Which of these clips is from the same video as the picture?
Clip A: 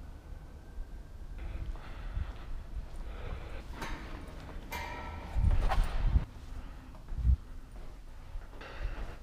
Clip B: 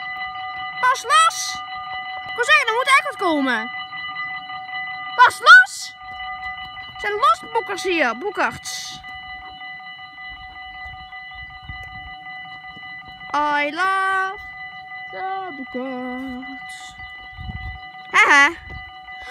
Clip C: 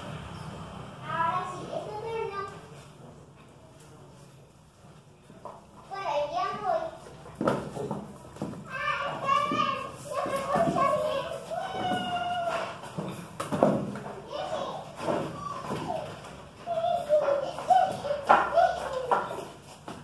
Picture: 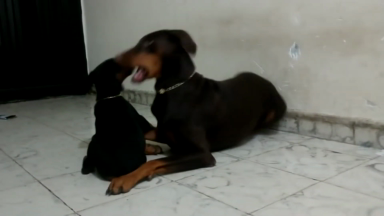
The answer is C